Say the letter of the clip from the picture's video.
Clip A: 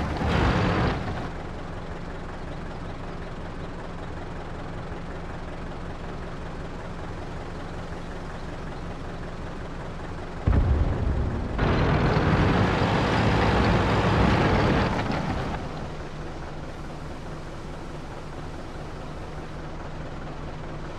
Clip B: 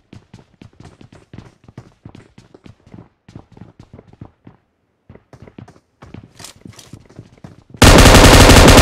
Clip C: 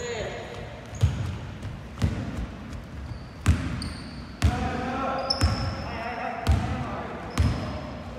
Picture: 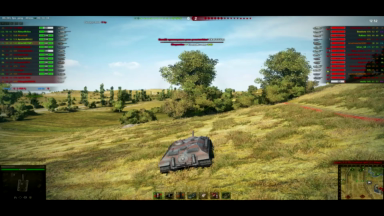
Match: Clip A